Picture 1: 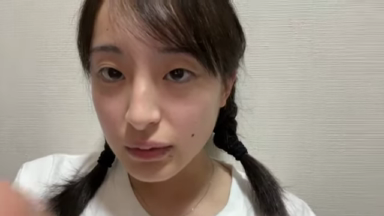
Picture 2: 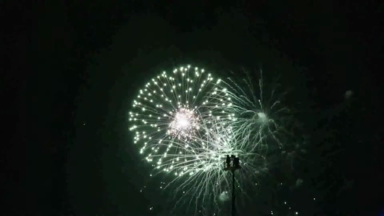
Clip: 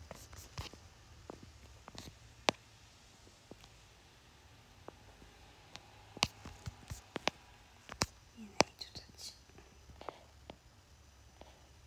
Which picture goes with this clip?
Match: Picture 1